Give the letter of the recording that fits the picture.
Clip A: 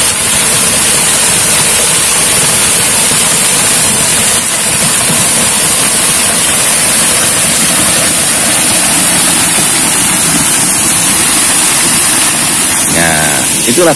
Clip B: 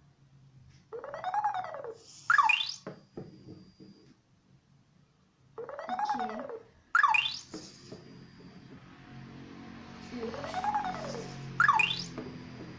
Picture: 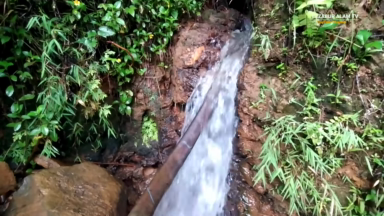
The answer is A